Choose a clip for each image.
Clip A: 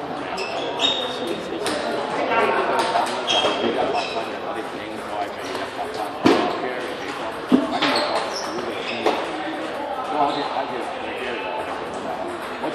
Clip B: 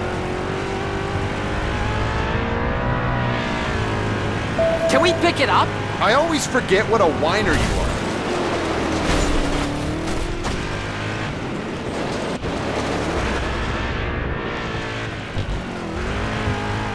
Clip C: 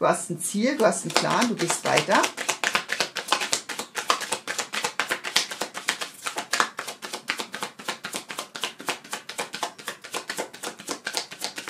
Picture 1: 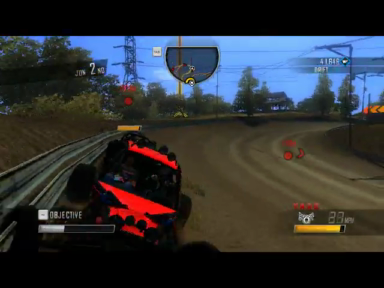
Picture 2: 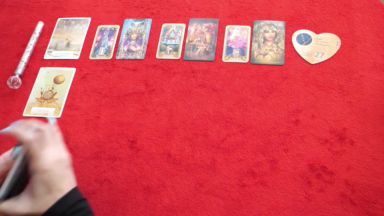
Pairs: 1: B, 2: C